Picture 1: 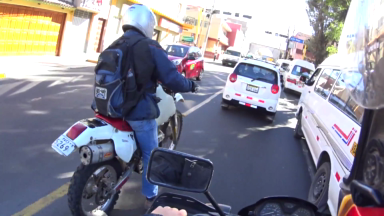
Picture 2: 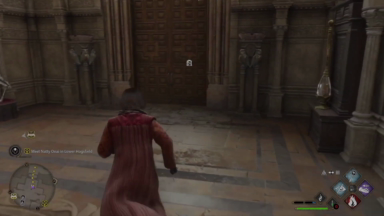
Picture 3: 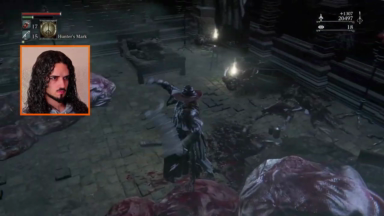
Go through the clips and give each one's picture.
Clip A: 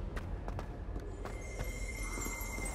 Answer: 2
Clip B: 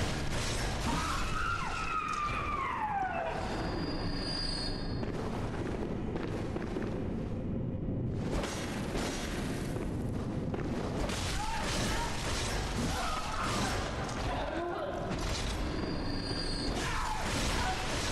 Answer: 3